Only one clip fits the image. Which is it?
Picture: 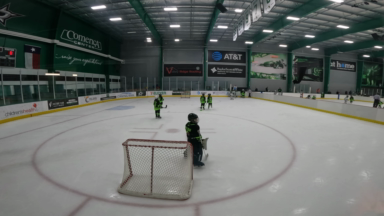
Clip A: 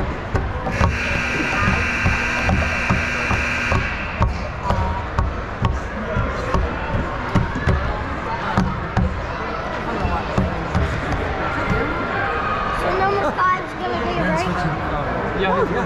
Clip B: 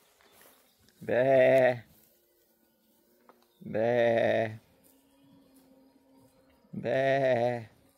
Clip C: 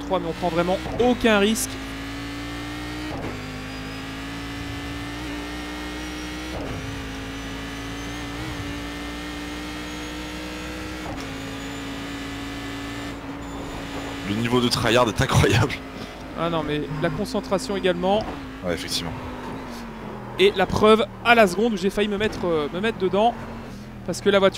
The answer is A